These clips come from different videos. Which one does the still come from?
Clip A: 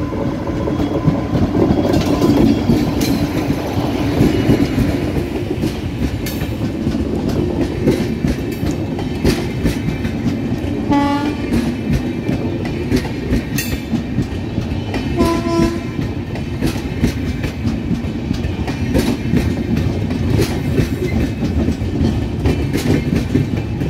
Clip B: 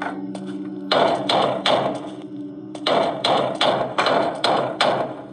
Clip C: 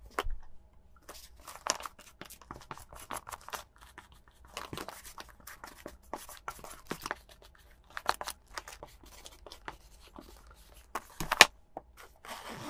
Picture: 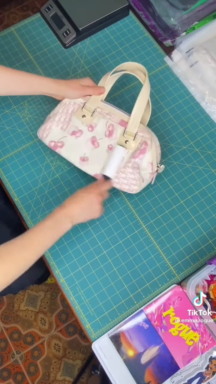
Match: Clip C